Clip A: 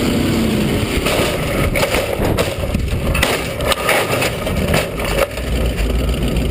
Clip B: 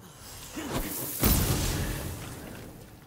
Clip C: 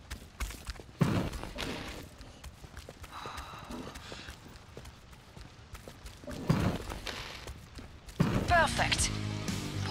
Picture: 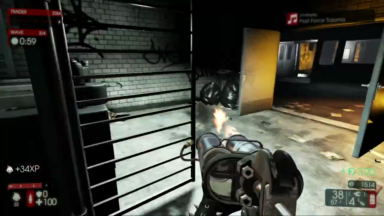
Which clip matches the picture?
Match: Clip C